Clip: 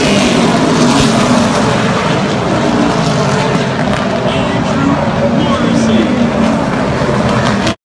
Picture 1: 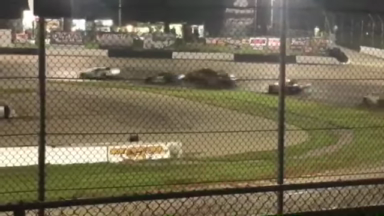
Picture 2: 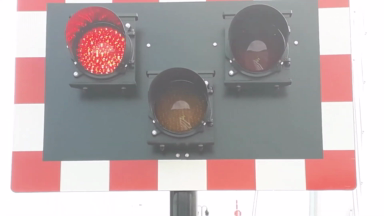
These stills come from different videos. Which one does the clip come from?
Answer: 1